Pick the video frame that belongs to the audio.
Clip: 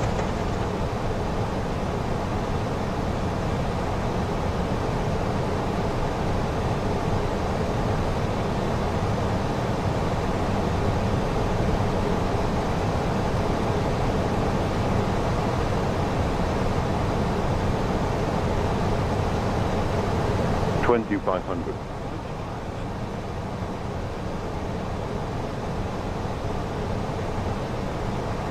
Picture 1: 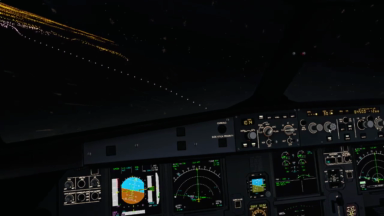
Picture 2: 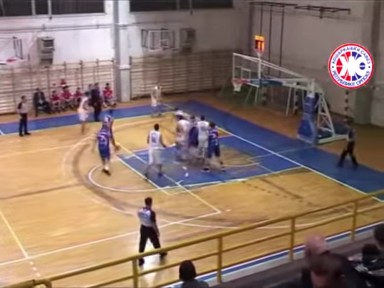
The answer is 1